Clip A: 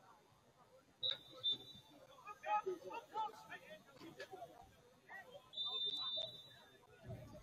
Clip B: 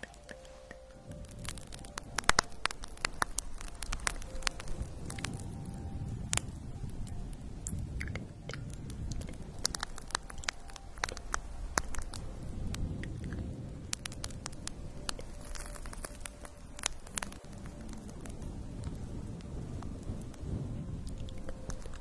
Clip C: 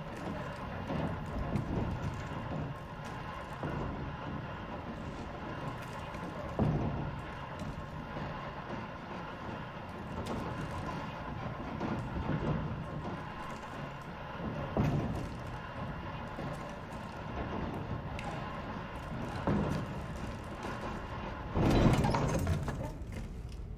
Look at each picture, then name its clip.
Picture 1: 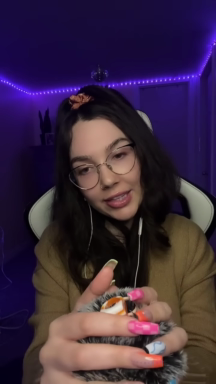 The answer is B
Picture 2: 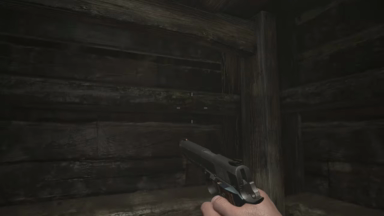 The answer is C